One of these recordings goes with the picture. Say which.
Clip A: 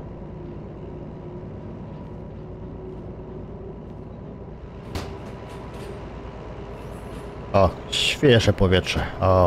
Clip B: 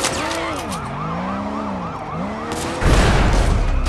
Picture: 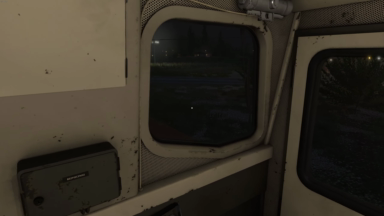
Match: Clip A